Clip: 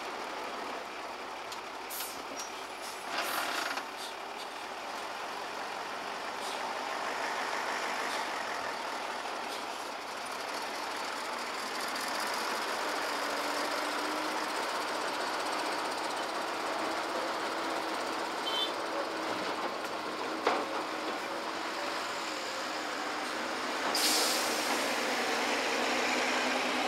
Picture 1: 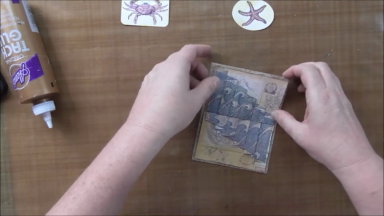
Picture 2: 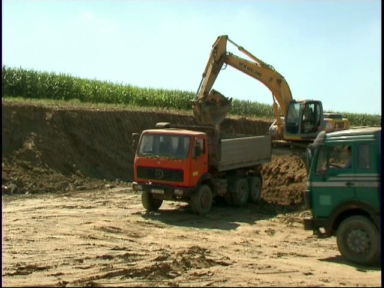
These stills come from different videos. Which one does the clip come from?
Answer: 2